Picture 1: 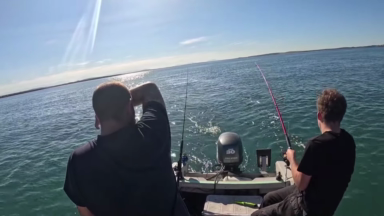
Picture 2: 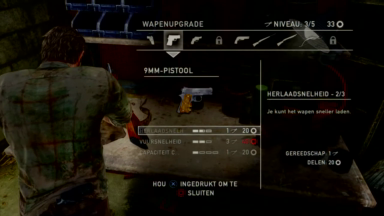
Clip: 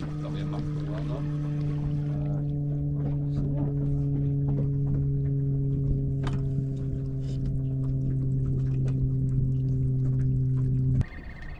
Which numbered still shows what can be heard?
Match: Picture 1